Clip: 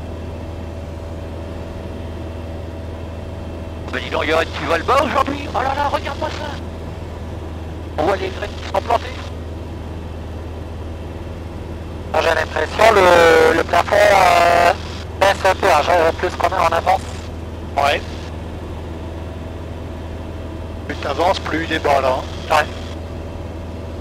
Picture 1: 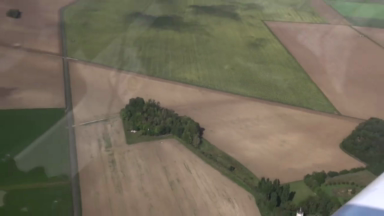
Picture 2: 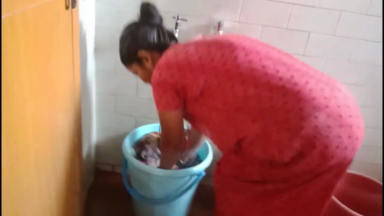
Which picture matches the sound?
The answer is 1